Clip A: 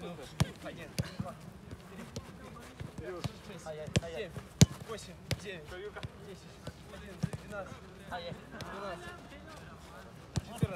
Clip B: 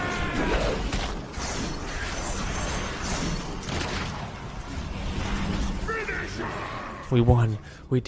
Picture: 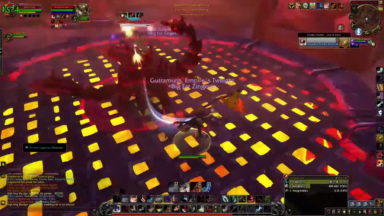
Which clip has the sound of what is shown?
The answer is B